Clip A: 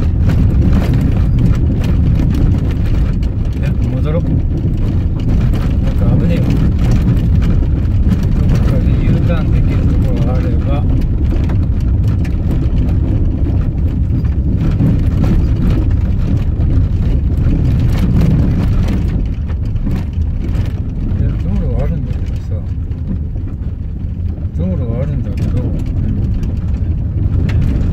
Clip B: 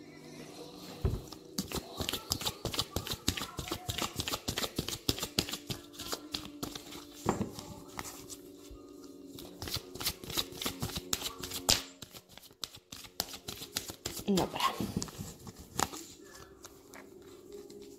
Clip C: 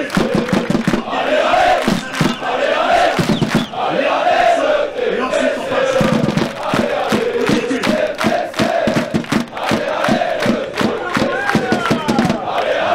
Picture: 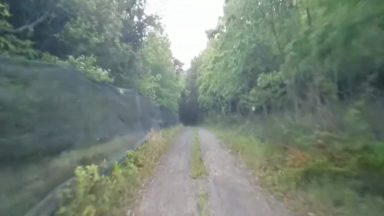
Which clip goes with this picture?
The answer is A